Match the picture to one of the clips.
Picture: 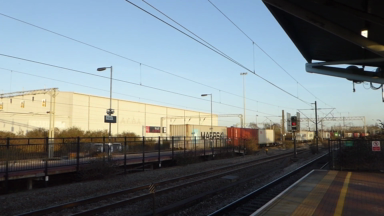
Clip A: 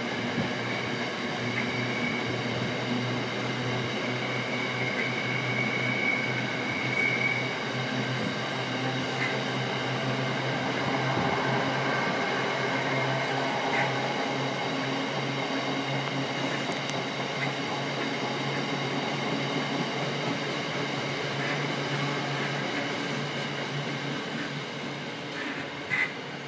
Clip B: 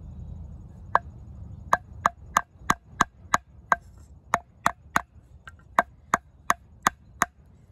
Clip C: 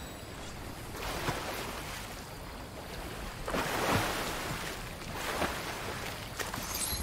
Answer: A